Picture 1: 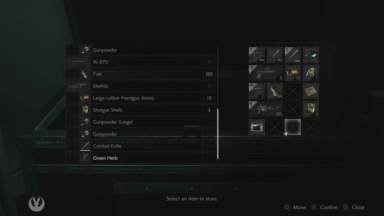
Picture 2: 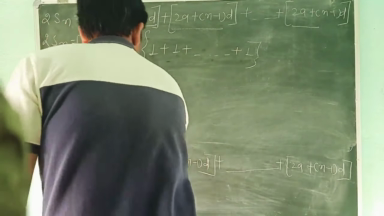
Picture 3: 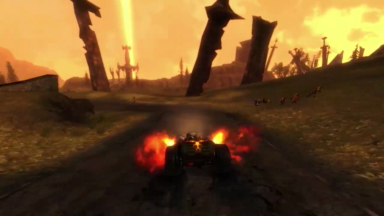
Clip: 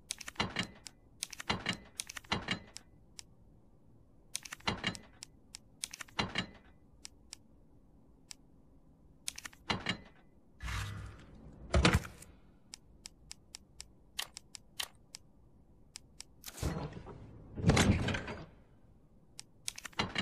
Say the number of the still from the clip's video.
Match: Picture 1